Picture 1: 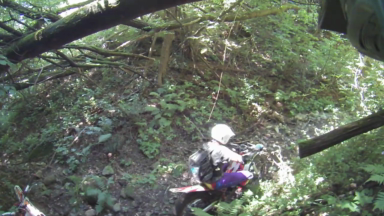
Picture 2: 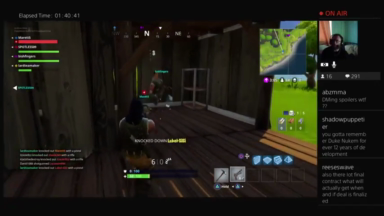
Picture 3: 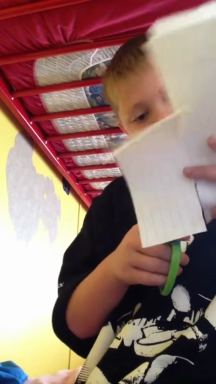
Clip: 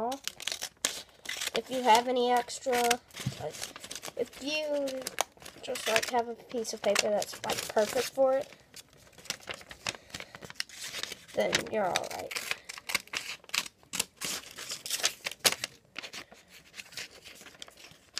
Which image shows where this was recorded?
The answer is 3